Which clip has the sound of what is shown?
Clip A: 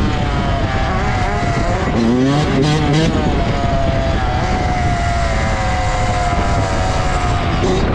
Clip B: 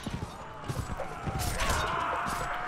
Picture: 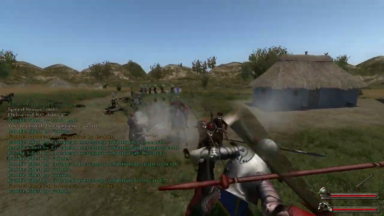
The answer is B